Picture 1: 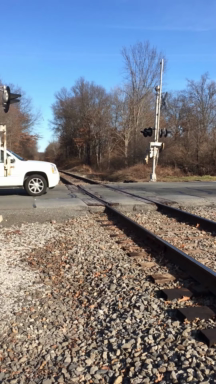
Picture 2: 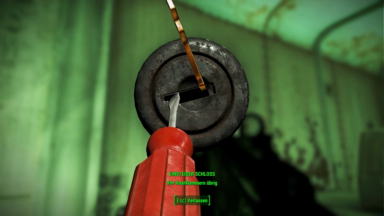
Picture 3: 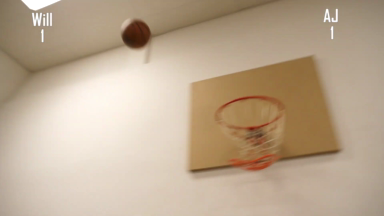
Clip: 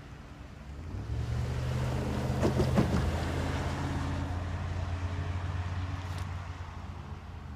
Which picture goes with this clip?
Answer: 1